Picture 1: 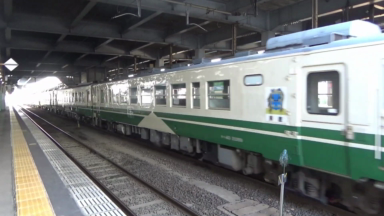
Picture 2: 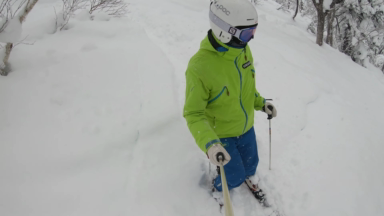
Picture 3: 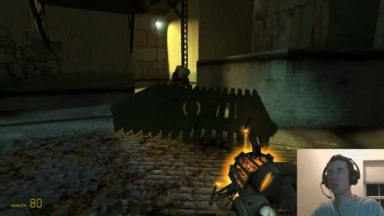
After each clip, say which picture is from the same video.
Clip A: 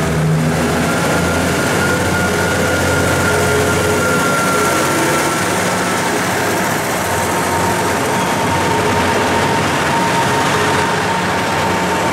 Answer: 1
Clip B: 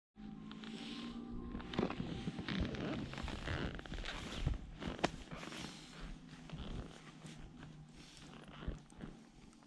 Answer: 2